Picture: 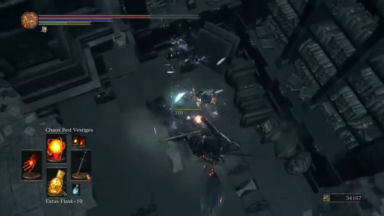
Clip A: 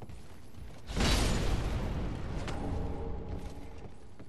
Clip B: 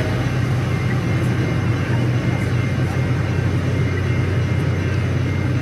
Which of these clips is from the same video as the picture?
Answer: A